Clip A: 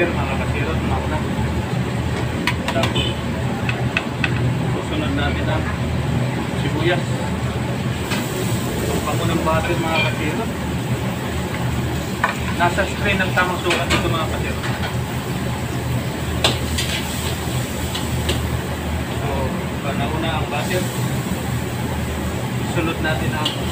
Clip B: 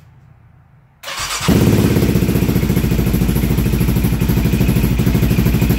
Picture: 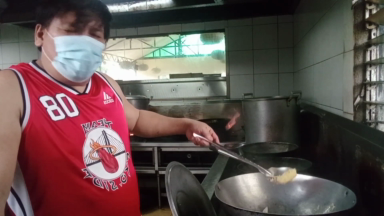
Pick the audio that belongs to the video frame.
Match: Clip A